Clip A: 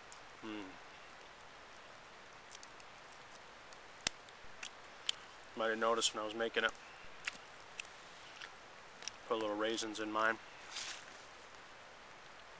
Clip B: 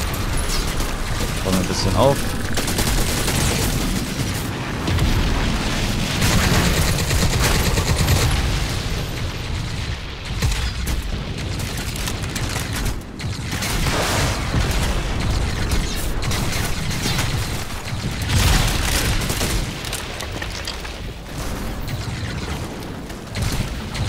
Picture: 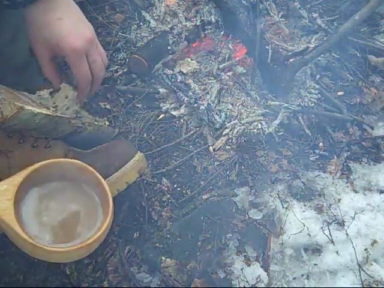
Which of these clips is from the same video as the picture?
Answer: A